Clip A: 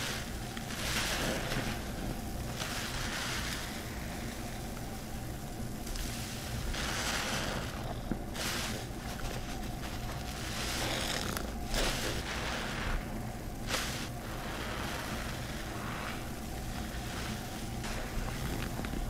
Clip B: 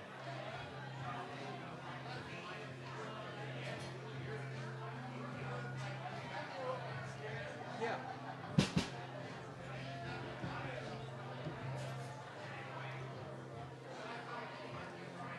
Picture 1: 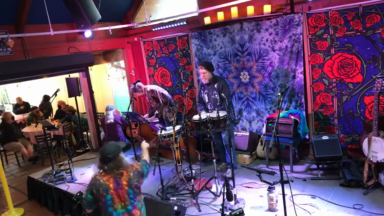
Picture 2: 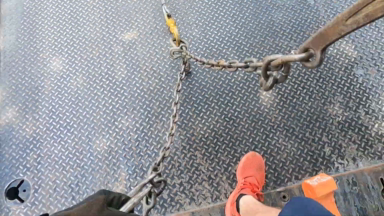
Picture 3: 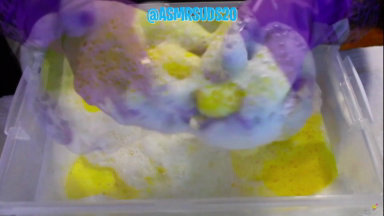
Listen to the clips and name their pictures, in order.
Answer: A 3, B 1